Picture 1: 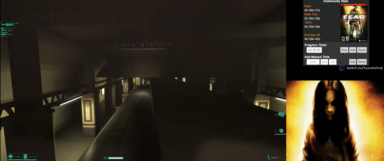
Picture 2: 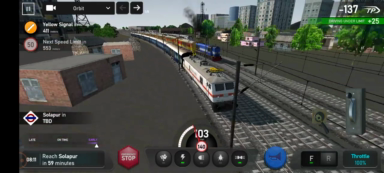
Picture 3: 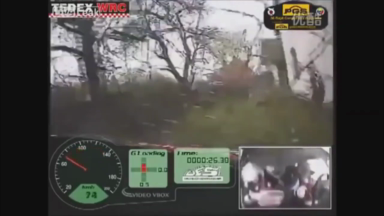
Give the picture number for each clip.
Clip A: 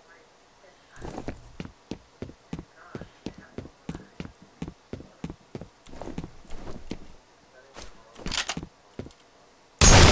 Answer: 1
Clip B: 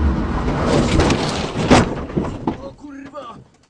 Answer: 3